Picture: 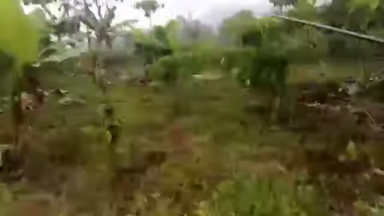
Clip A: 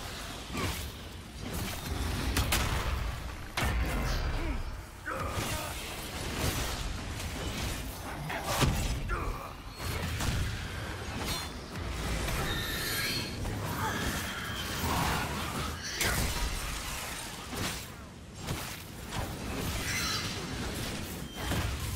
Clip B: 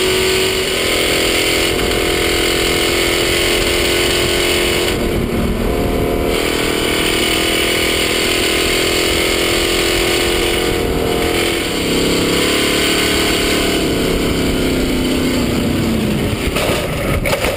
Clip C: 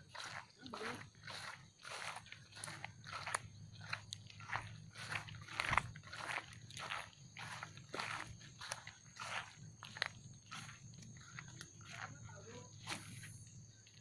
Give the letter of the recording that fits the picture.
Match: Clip C